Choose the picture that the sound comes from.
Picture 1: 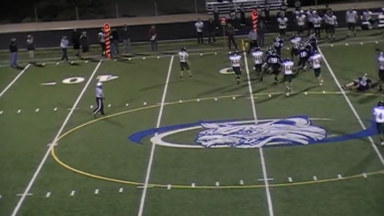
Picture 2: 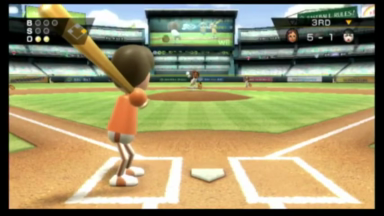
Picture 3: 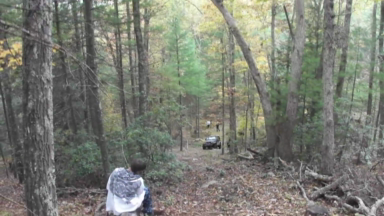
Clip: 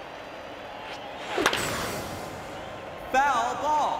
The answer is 2